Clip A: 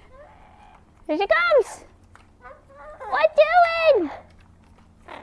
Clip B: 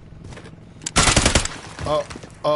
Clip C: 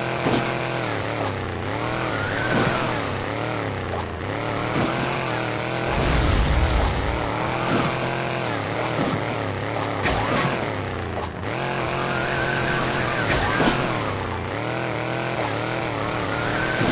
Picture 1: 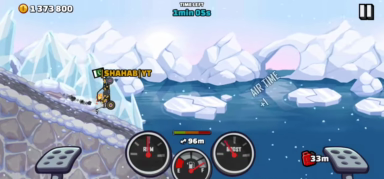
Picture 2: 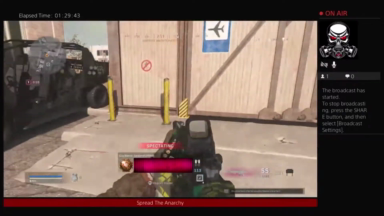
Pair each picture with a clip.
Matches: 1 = C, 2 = B